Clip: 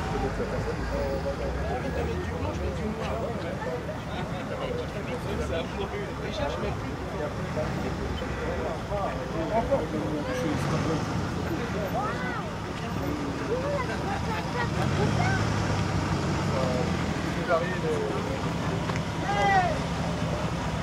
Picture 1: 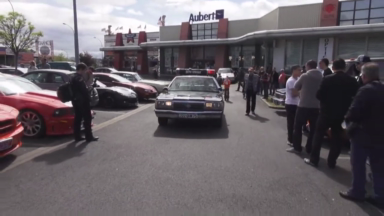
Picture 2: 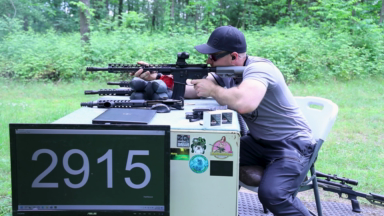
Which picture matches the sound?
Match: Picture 1